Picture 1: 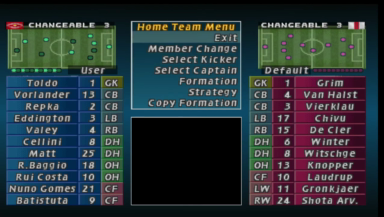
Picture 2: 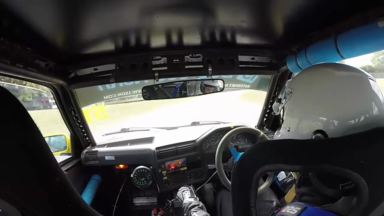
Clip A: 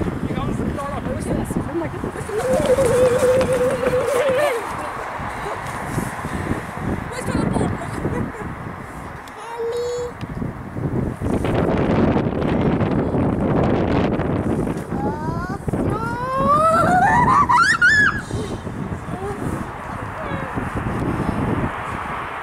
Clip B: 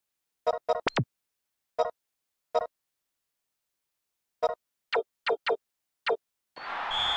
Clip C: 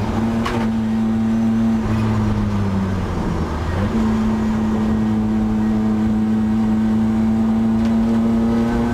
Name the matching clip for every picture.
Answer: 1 B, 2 C